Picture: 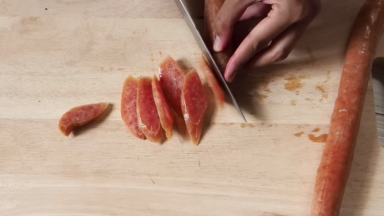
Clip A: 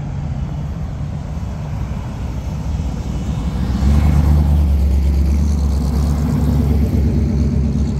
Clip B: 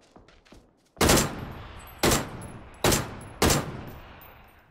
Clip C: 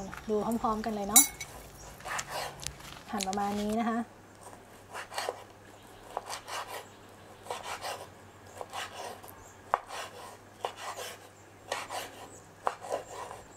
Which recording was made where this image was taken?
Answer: C